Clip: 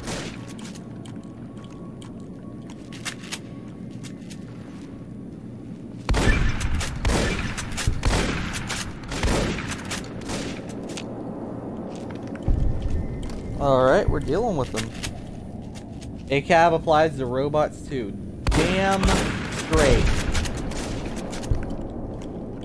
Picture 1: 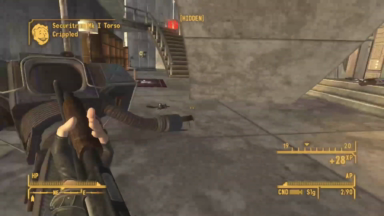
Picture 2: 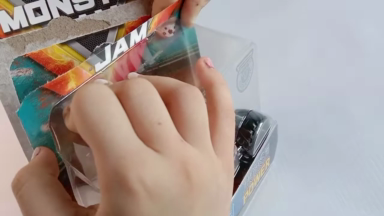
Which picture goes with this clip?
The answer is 1